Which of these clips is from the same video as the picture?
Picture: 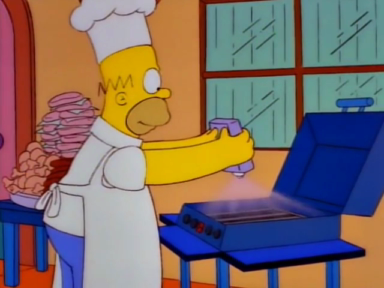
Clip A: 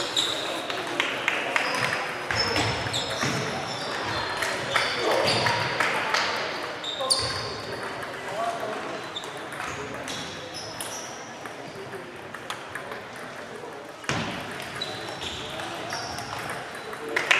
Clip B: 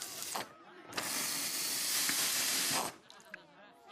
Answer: B